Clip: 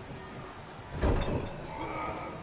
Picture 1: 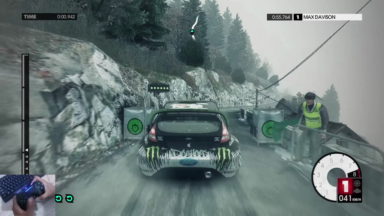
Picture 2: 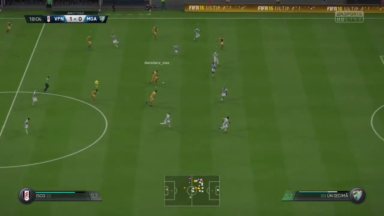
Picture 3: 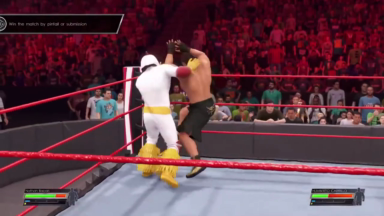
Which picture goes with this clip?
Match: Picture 3